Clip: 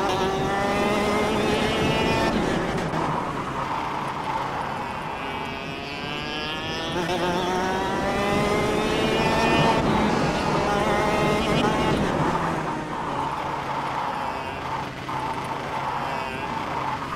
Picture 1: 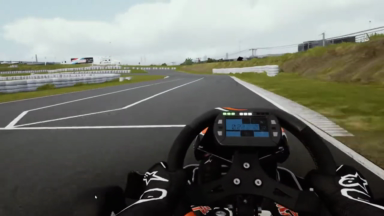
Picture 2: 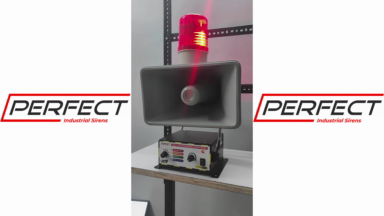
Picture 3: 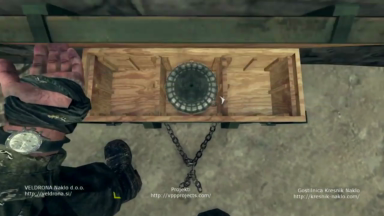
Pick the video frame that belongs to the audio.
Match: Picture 1